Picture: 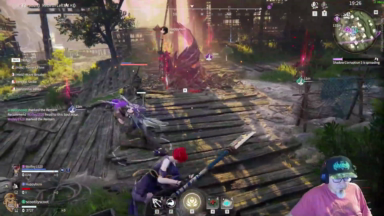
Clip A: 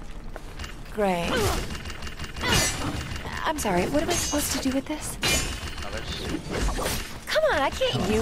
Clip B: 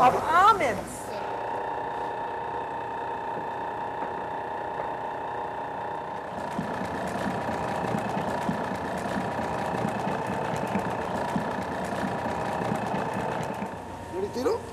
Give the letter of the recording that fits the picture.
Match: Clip A